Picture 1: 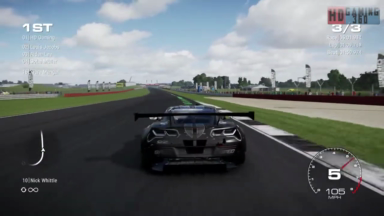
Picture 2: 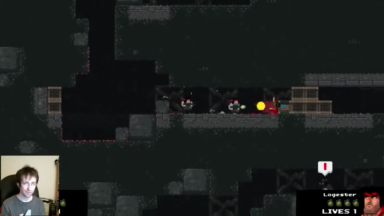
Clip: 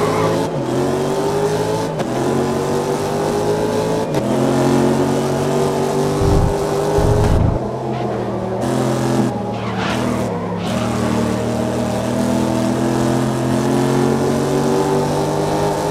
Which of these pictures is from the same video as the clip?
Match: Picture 1